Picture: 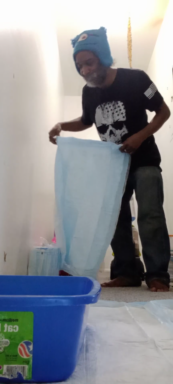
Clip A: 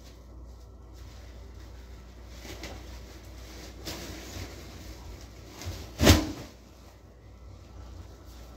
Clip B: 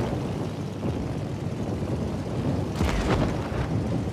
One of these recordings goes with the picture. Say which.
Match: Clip A